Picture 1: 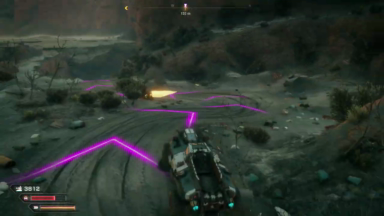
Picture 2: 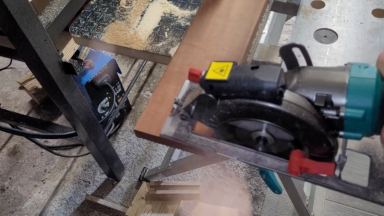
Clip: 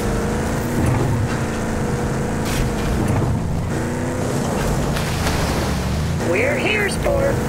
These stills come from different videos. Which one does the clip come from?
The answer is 1